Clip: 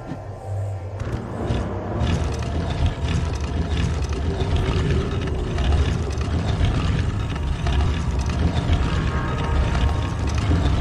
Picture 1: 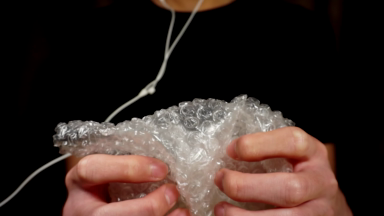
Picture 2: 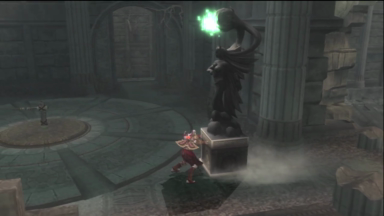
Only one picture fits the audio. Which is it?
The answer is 2